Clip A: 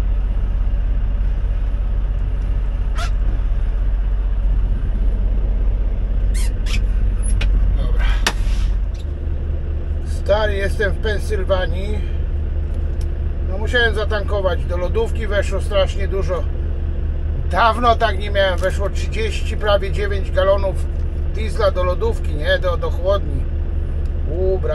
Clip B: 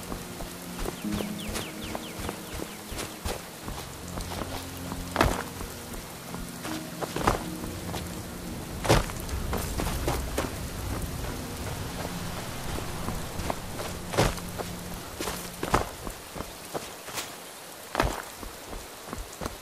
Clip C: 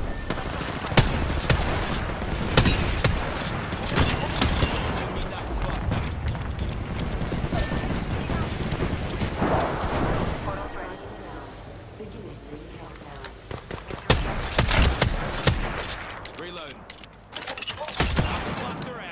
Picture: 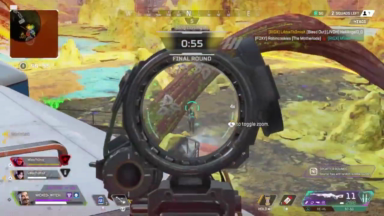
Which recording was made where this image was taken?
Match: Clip C